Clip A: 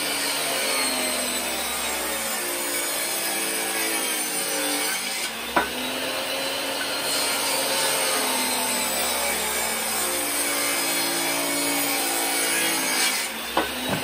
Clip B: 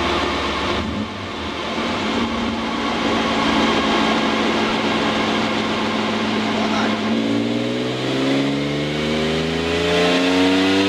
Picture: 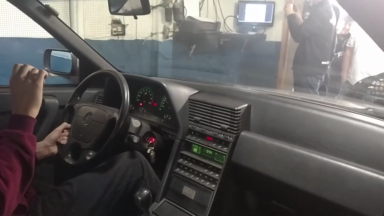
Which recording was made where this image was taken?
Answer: B